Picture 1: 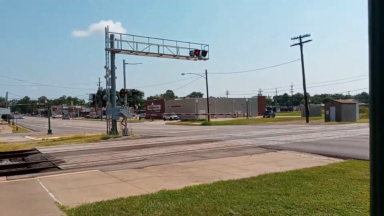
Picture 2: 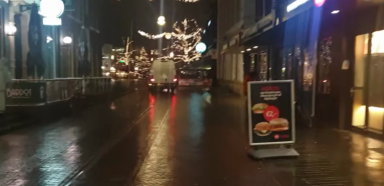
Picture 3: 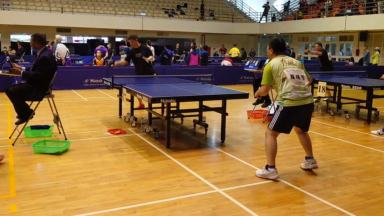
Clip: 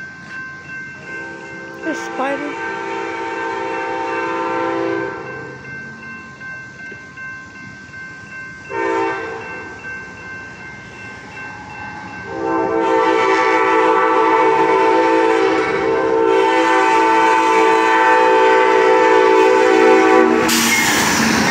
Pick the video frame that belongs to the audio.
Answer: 1